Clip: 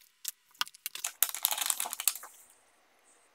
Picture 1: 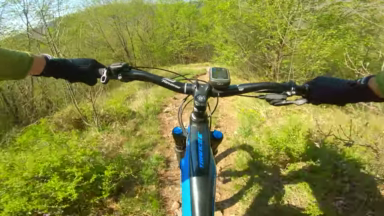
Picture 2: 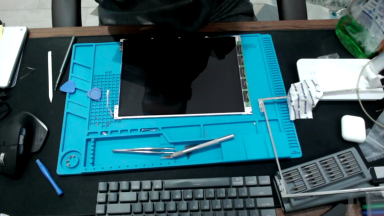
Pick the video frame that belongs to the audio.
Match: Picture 2